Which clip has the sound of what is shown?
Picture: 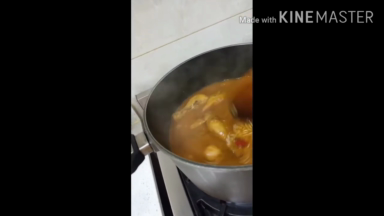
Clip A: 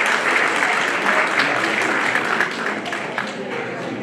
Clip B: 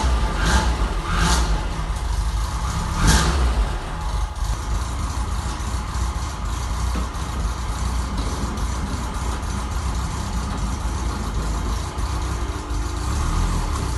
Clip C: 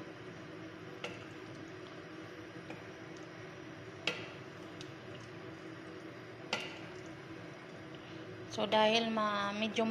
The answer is C